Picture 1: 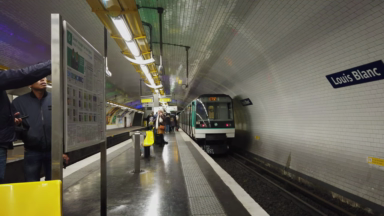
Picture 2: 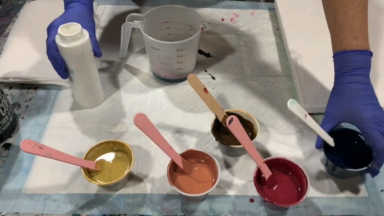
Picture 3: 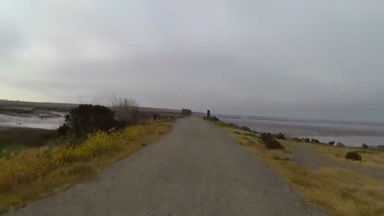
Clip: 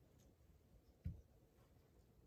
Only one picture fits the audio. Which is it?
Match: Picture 2